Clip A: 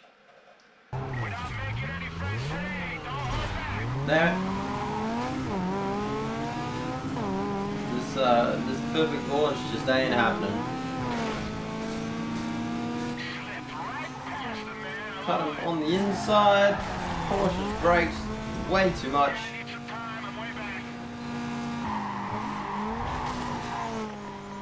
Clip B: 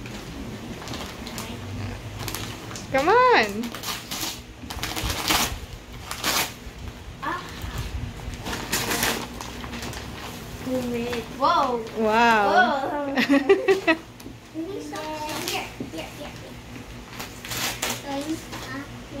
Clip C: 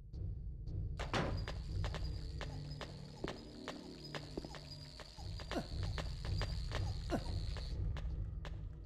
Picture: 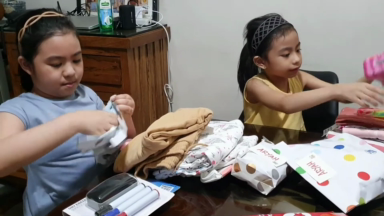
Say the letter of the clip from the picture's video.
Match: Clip B